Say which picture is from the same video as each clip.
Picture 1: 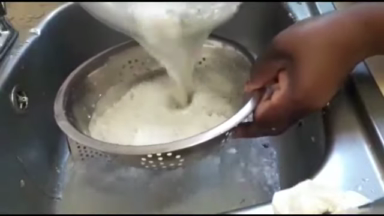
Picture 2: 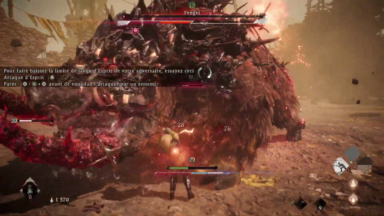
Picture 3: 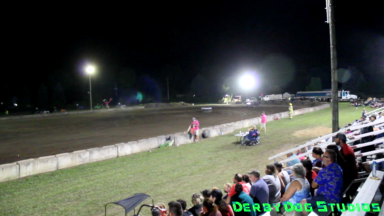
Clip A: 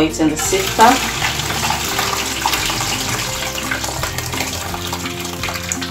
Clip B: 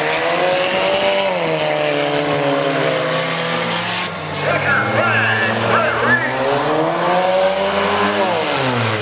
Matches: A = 1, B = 3